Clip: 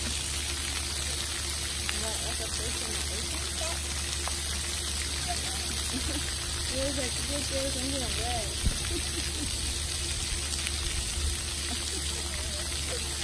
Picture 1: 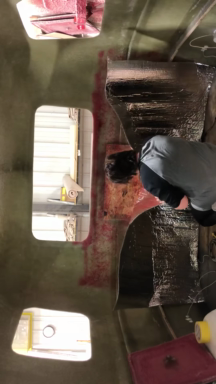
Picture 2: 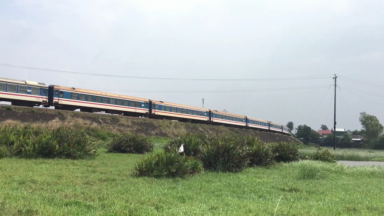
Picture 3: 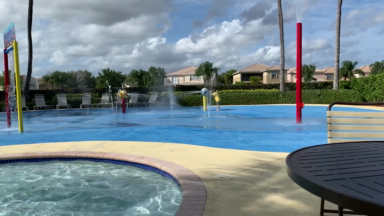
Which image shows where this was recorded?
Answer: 3